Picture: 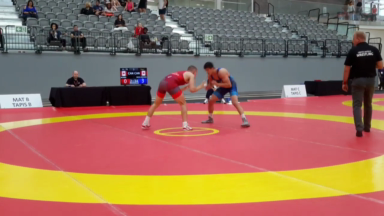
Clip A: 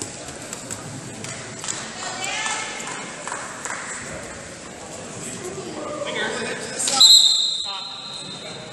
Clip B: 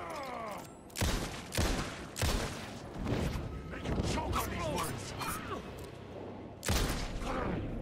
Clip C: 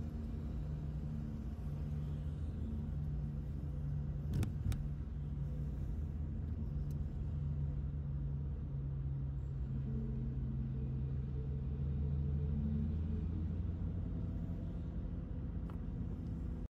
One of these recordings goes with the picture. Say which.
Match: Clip A